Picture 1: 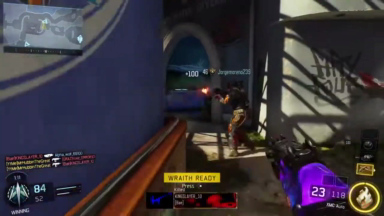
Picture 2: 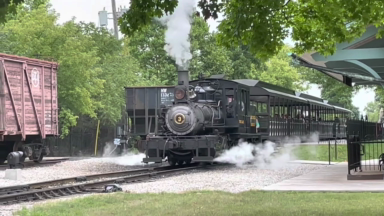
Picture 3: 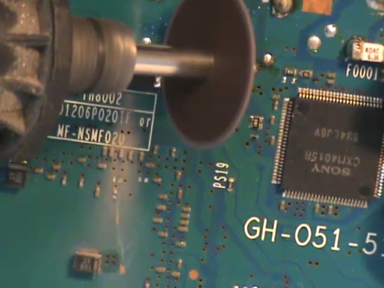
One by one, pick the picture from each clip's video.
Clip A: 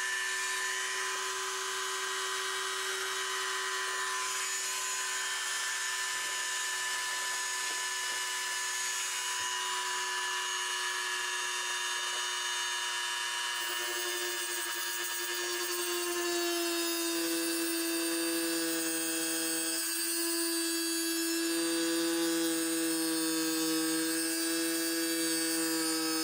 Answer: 3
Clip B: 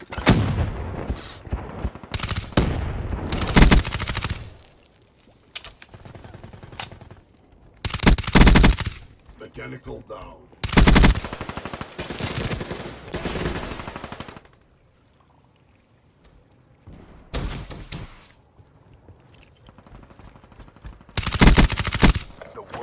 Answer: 1